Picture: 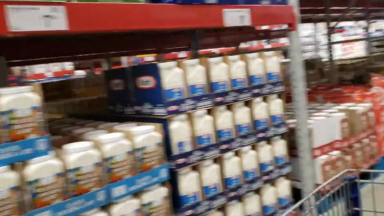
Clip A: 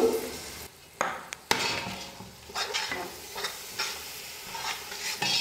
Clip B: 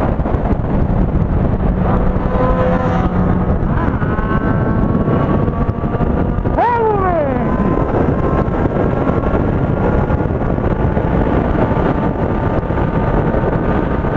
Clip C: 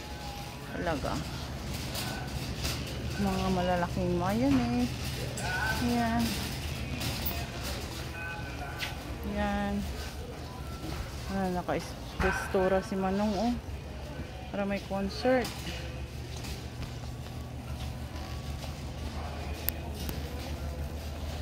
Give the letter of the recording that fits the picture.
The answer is C